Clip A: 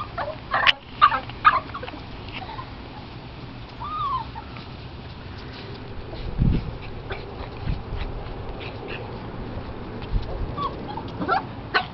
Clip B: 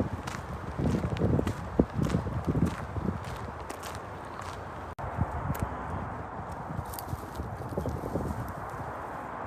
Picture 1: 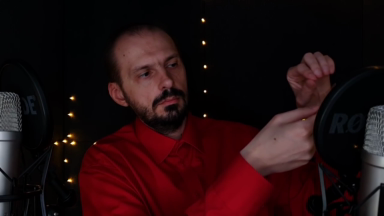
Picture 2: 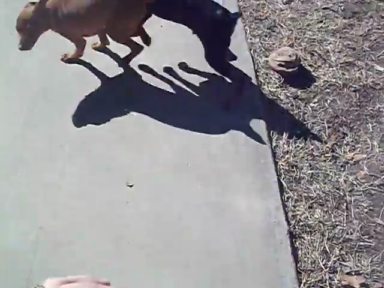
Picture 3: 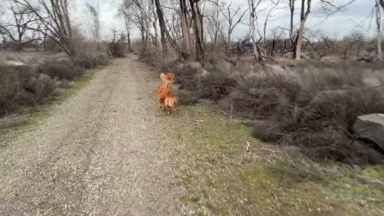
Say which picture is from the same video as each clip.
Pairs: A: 2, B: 3